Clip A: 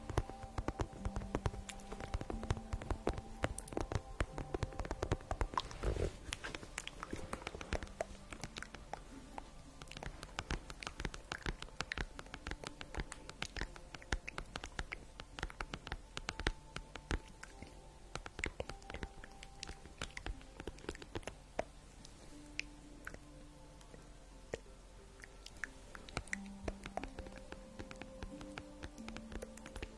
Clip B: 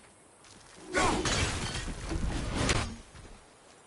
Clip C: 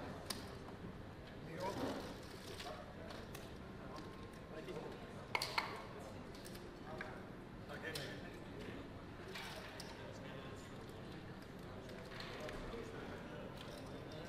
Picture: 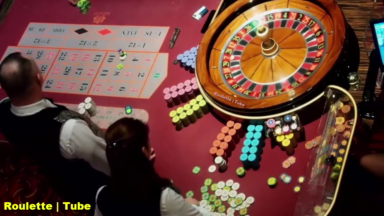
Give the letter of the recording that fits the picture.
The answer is C